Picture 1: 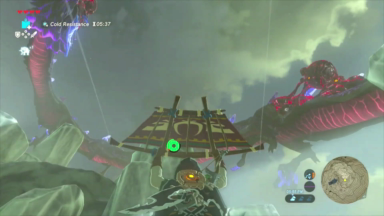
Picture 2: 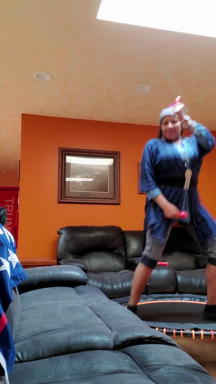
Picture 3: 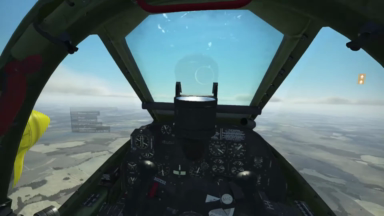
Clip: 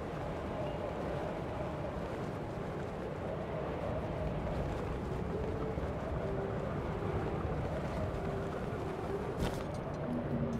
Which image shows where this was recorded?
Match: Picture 1